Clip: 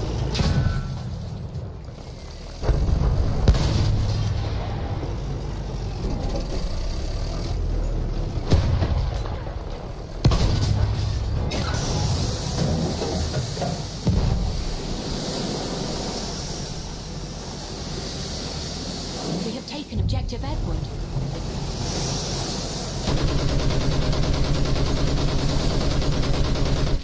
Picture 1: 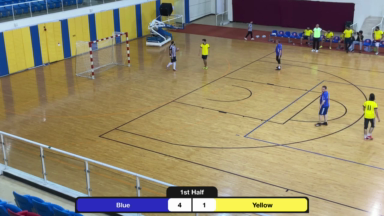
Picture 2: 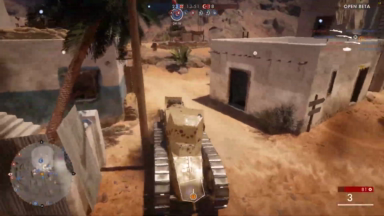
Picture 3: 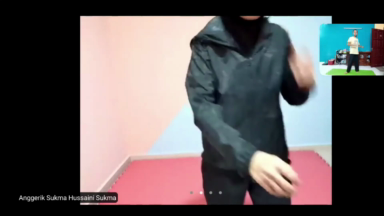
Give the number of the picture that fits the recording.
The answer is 2